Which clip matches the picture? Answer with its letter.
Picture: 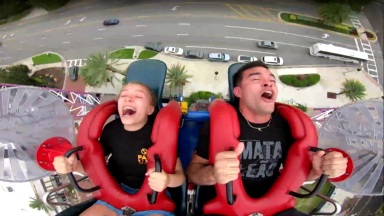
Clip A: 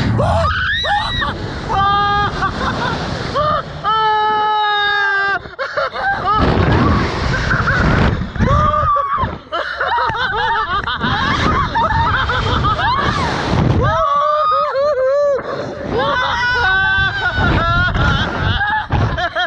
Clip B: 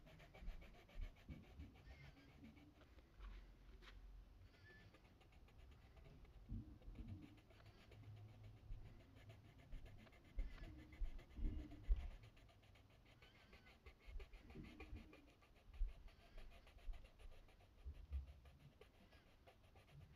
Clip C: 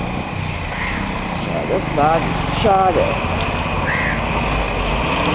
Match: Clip A